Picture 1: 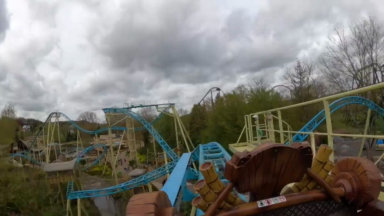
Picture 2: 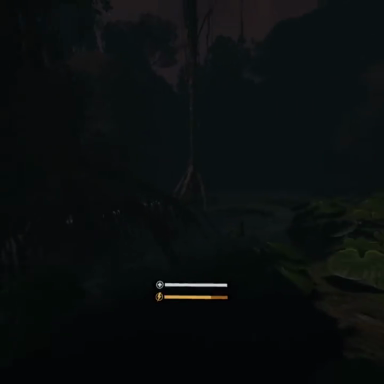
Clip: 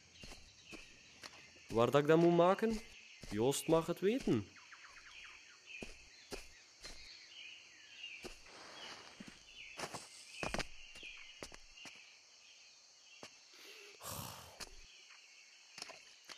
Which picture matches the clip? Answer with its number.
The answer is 2